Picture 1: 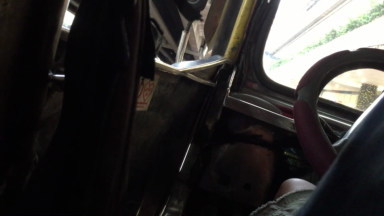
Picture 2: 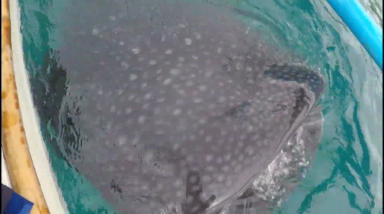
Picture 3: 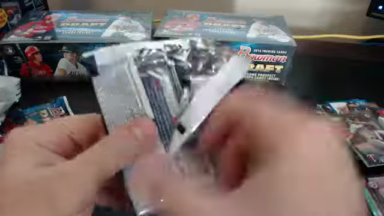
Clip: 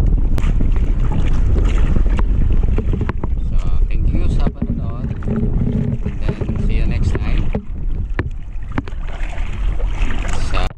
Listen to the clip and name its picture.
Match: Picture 2